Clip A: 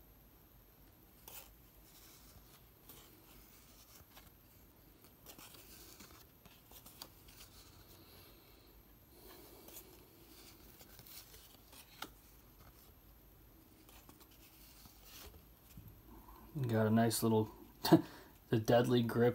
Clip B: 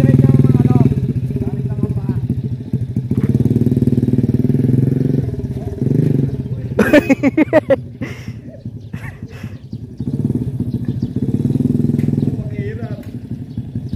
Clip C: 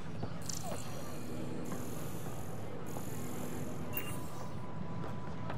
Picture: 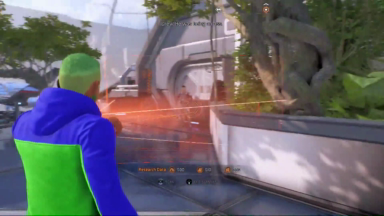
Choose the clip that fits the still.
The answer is C